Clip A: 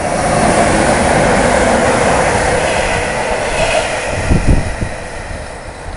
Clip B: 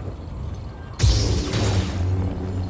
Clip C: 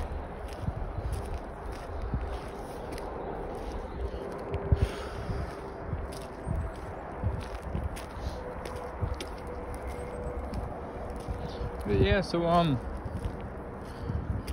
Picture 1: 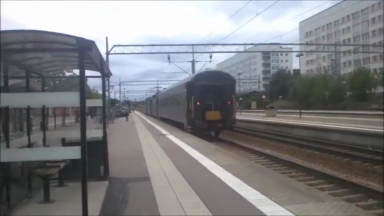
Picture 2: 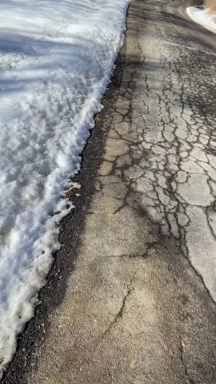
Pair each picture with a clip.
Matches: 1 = A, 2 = C